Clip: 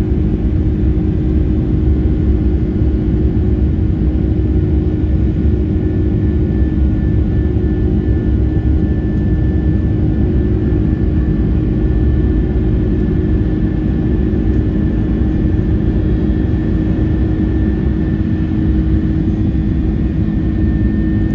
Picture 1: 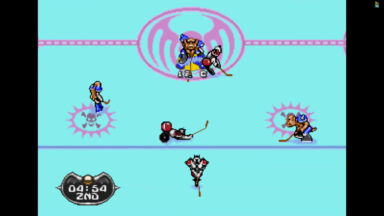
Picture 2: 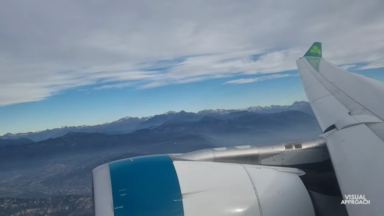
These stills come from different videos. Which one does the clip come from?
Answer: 2